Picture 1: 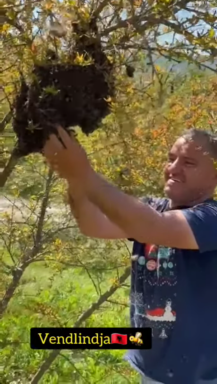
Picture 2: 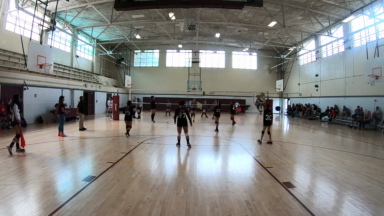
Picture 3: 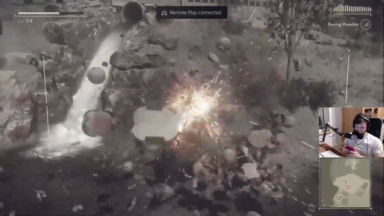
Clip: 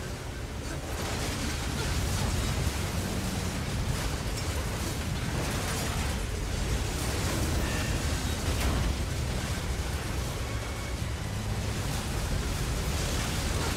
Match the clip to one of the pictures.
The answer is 3